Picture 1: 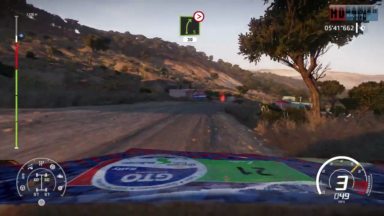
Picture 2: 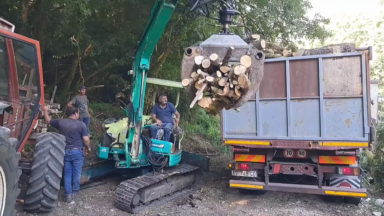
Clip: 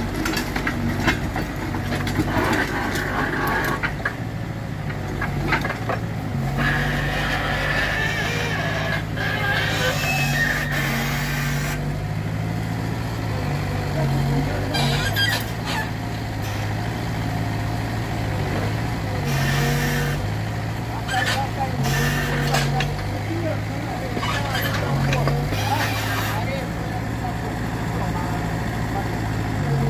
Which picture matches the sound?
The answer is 2